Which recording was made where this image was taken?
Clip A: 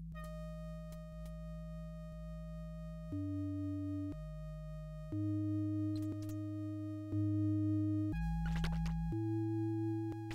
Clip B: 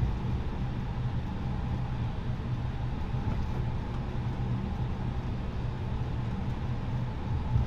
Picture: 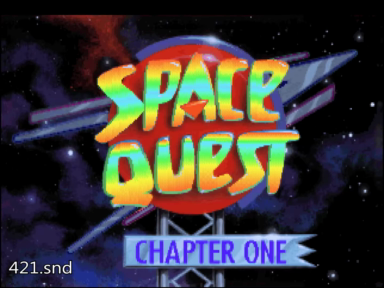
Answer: A